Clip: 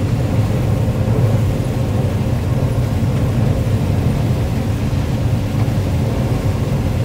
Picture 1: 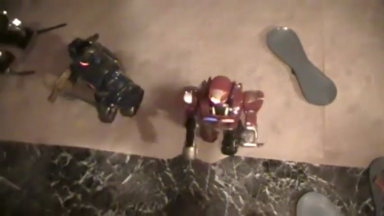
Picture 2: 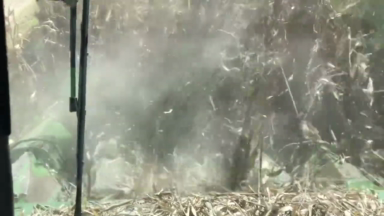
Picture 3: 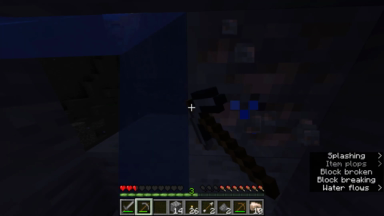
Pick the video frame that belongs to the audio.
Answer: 2